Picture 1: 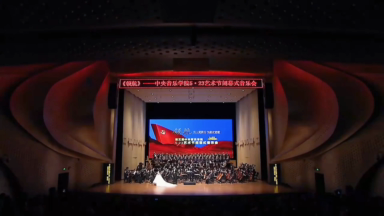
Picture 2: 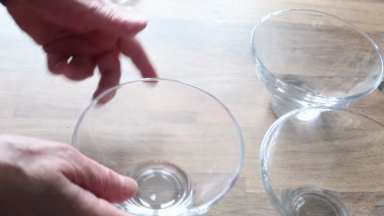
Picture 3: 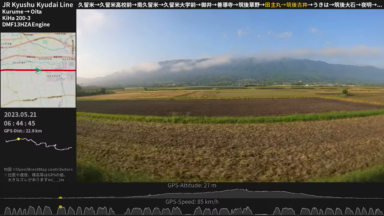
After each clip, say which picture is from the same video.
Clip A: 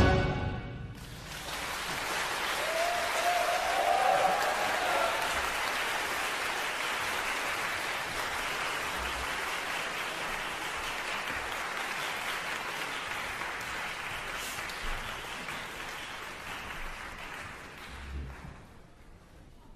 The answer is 1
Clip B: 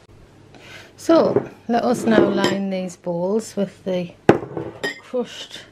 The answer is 2